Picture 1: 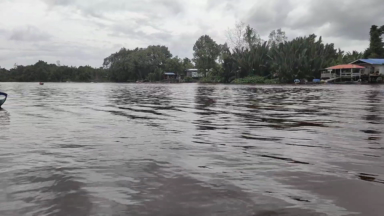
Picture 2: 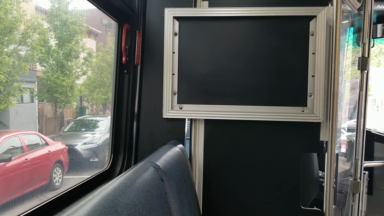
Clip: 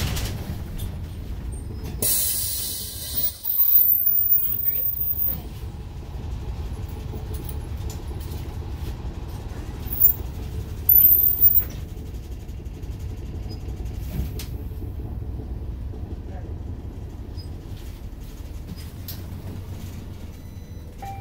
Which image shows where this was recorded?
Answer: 2